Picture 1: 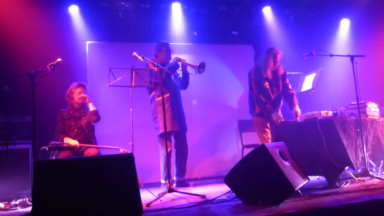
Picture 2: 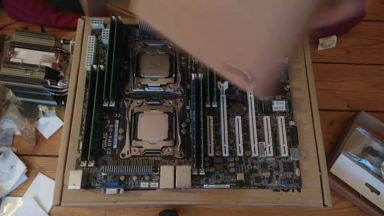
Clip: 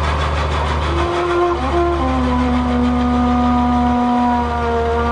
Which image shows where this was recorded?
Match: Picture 1